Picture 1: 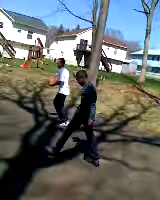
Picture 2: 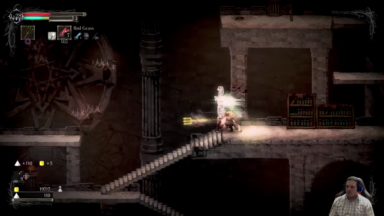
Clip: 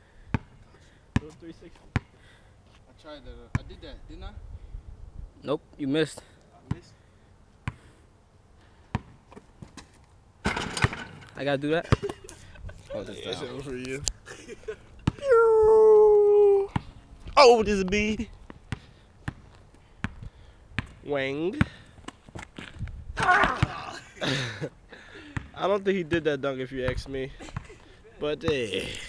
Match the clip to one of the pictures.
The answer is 1